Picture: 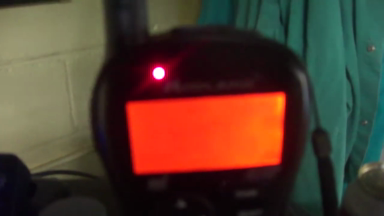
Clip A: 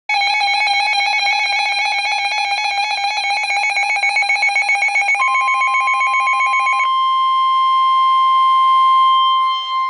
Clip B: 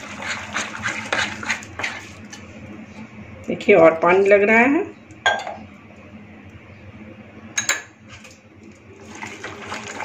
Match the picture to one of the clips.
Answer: A